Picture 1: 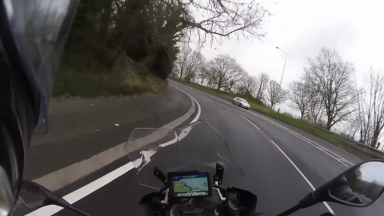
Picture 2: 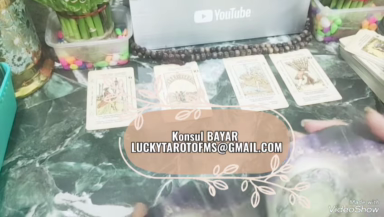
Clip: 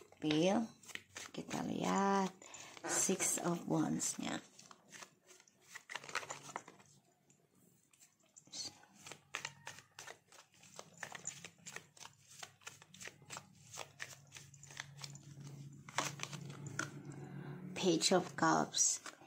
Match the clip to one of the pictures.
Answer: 2